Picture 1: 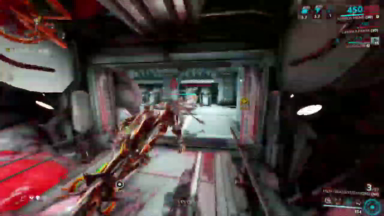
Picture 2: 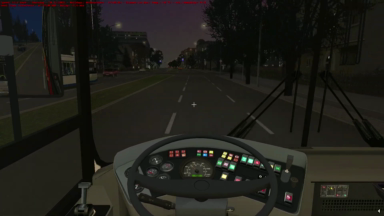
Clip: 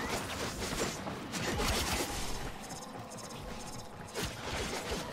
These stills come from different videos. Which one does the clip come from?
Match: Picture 1